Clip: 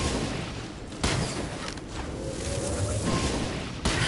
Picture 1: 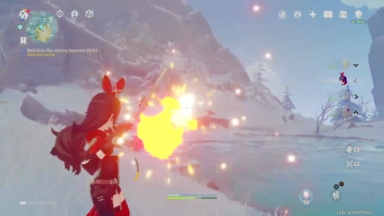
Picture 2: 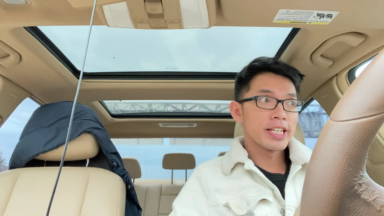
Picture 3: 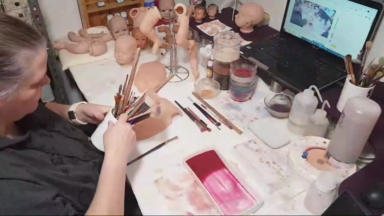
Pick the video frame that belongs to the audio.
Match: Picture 1